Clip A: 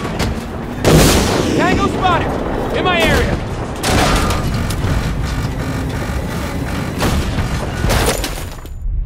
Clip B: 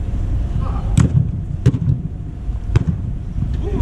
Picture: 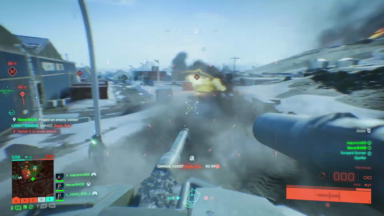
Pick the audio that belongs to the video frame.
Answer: A